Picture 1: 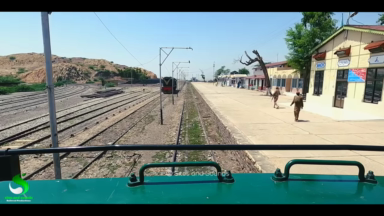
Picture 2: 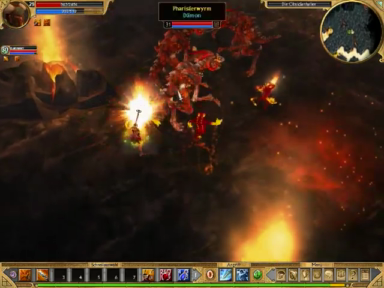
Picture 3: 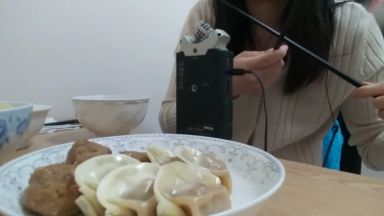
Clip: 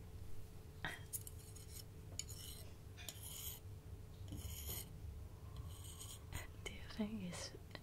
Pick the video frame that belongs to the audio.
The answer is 3